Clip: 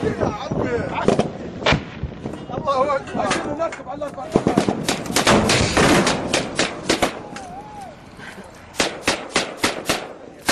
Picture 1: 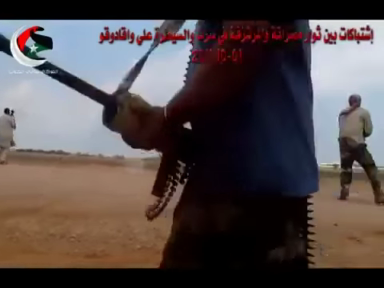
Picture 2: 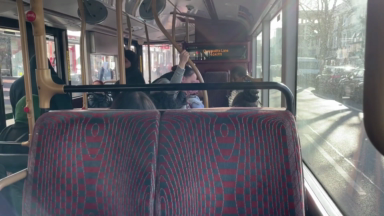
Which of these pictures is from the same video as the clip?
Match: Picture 1